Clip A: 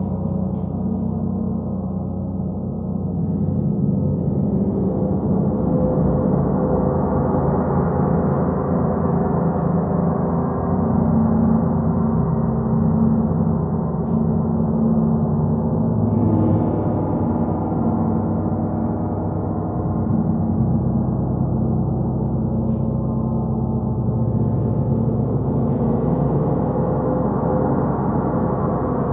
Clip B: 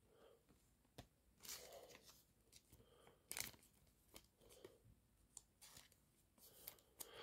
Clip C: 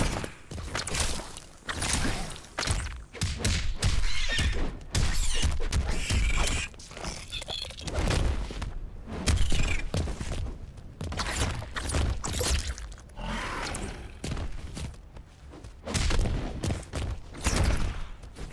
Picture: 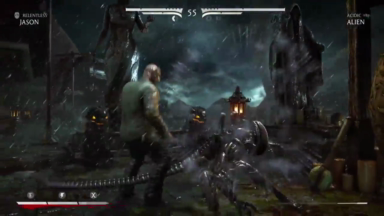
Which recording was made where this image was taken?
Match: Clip C